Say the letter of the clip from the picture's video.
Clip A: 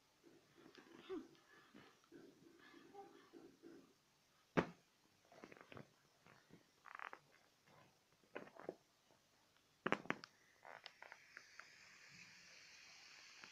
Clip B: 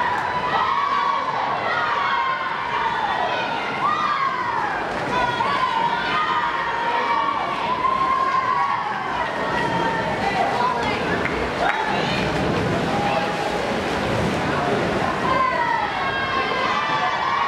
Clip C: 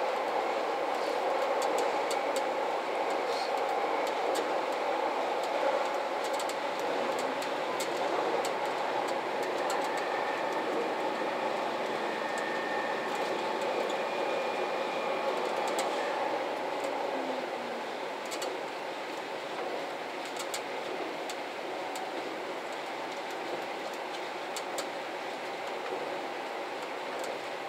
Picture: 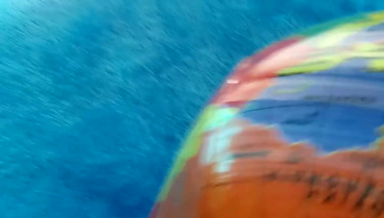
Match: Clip A